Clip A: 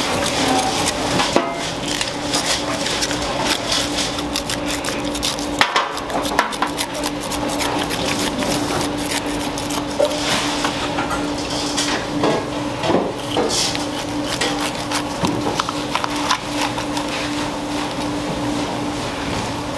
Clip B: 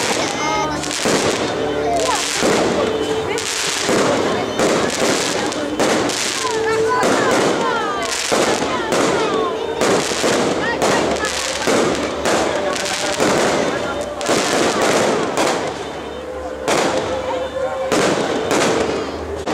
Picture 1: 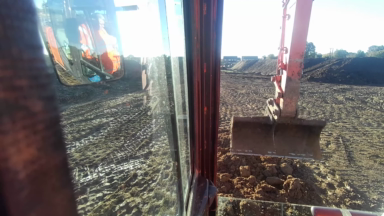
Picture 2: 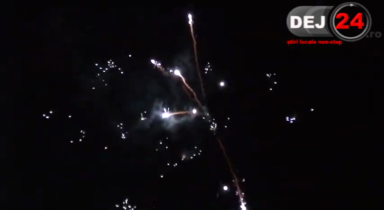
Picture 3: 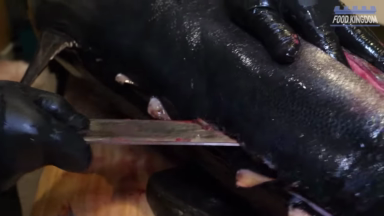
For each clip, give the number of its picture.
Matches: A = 3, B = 2